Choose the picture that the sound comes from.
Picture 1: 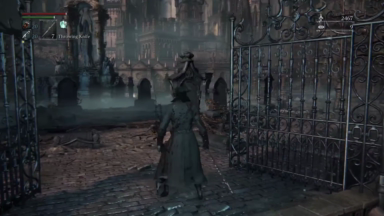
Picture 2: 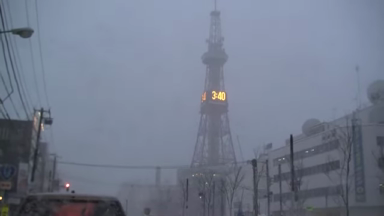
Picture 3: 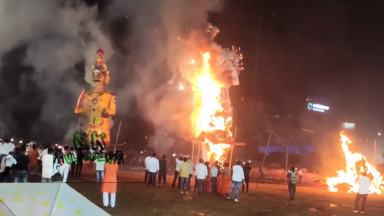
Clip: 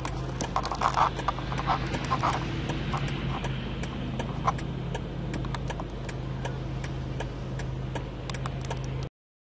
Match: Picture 2